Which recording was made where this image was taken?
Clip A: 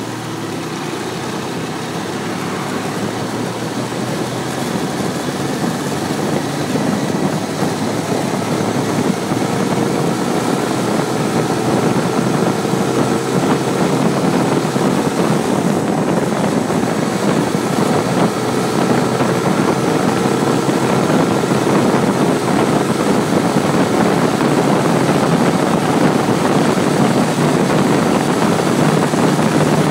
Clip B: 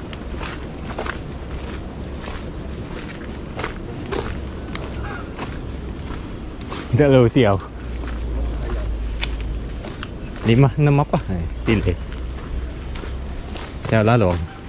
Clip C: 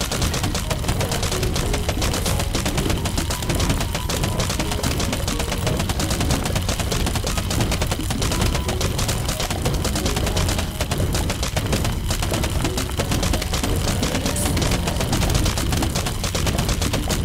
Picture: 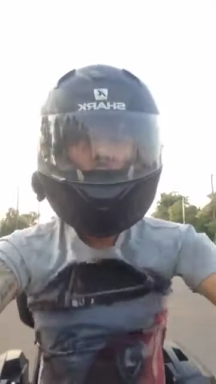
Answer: A